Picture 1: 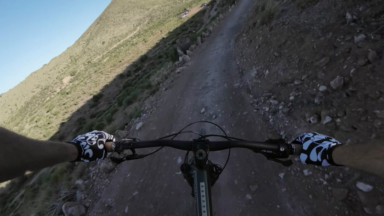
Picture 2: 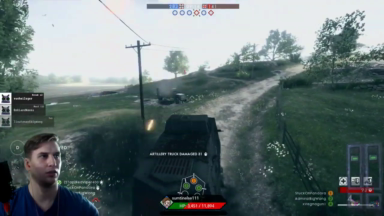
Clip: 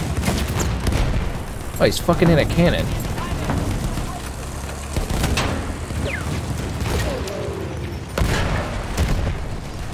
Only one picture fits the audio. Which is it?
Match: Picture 2